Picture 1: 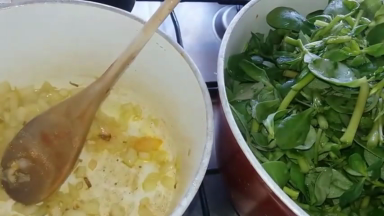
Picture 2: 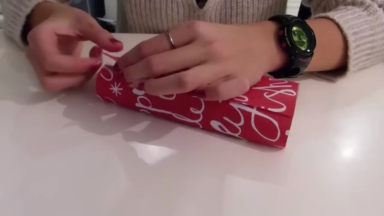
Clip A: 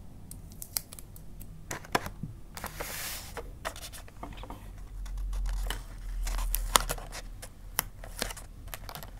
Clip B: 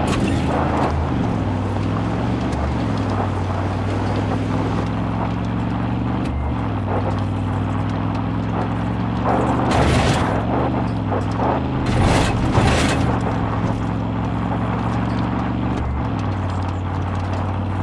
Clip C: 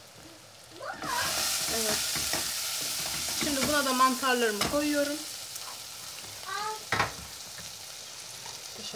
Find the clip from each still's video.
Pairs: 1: C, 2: A